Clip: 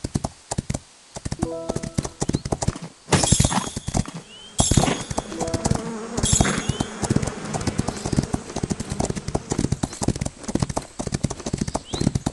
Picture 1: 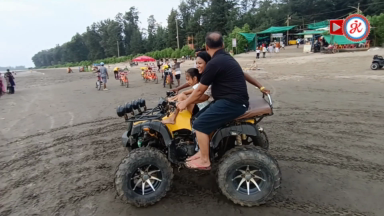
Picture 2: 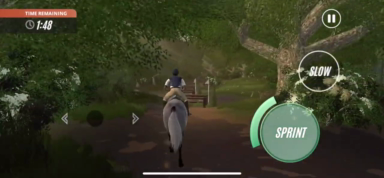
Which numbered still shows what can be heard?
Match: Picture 2